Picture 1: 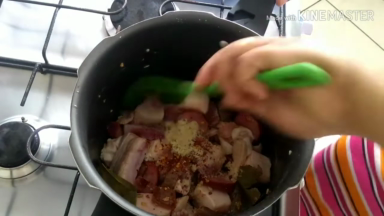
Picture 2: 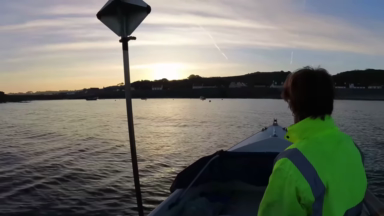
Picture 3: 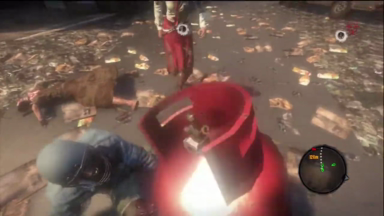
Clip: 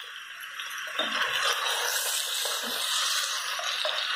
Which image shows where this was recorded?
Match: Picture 1